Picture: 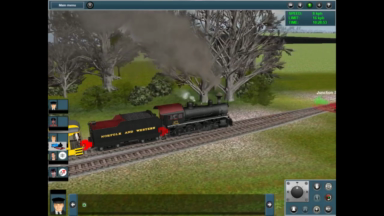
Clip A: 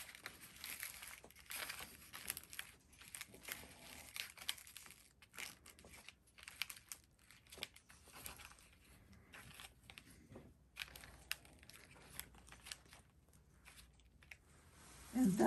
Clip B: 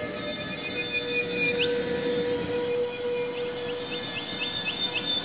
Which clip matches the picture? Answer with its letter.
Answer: B